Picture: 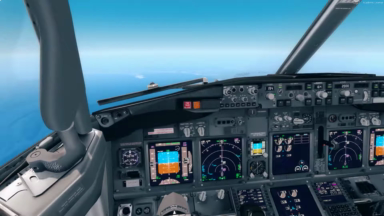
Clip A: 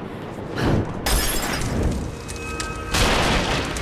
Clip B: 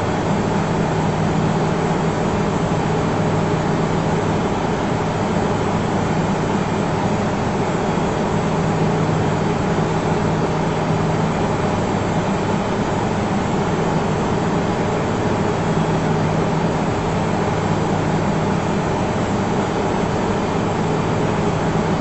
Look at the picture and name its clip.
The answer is B